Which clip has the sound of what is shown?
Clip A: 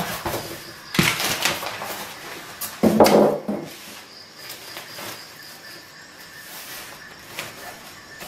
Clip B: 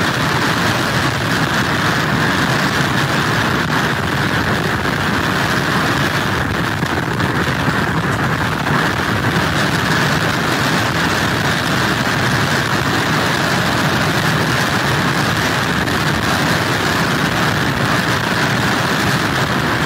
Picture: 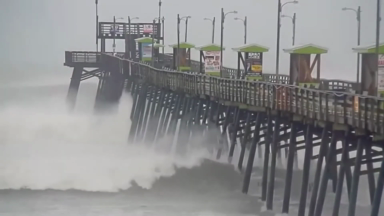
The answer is B